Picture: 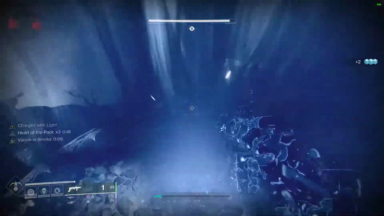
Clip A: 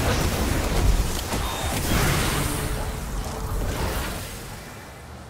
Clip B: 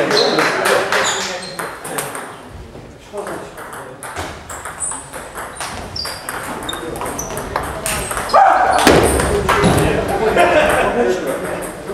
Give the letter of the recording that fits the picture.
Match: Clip A